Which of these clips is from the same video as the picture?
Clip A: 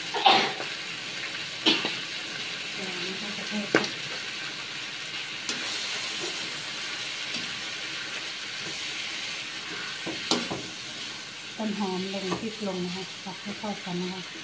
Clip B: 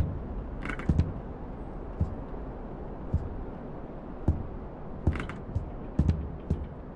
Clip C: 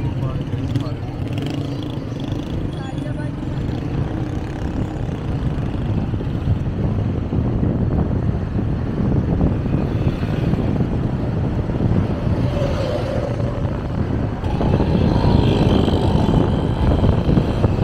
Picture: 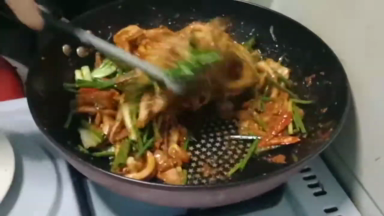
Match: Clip A